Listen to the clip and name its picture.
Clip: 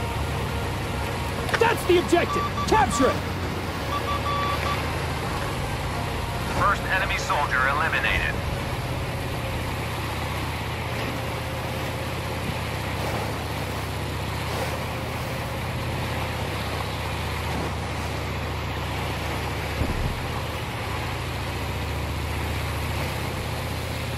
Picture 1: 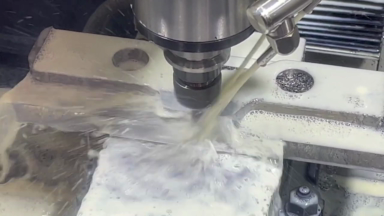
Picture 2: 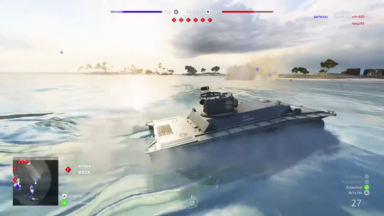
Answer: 2